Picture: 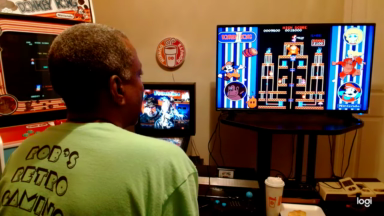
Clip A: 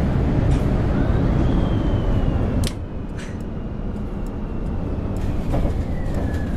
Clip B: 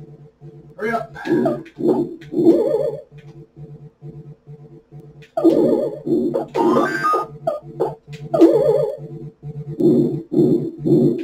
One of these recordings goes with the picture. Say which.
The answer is B